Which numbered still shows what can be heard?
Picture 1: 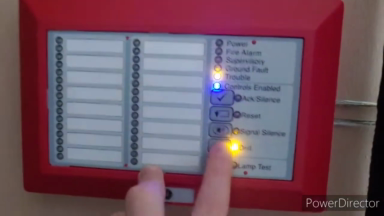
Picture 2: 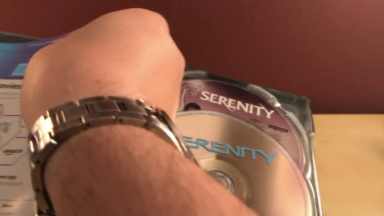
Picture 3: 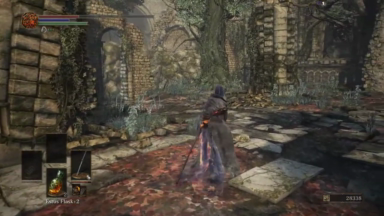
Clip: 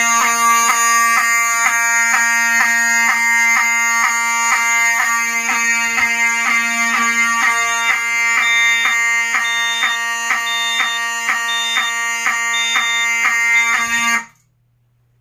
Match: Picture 1